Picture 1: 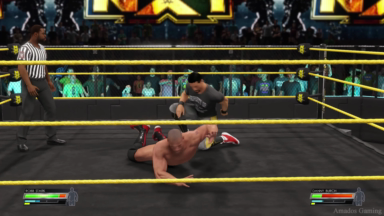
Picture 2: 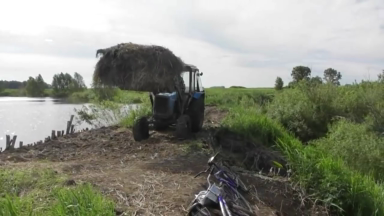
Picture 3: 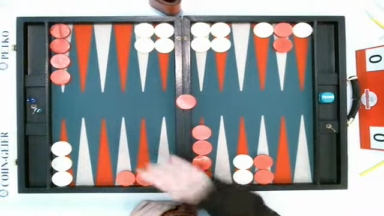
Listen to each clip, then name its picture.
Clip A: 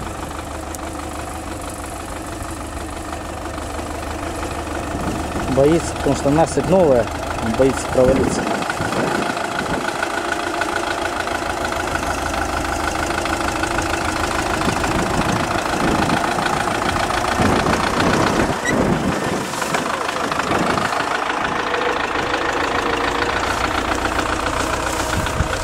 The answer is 2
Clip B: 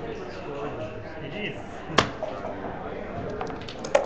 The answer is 3